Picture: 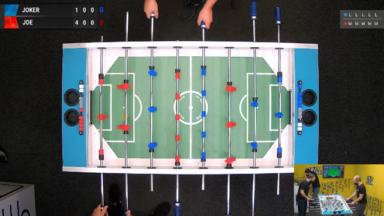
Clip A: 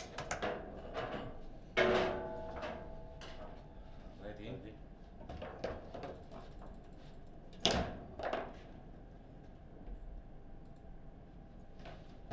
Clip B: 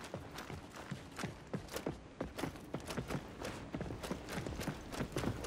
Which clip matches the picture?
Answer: A